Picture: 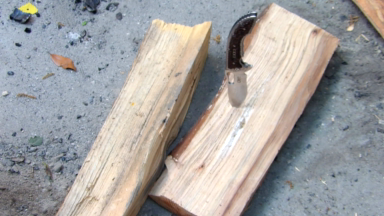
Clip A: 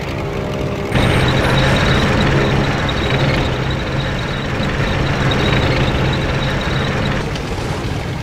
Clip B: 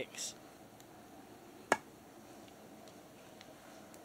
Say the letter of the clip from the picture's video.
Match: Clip B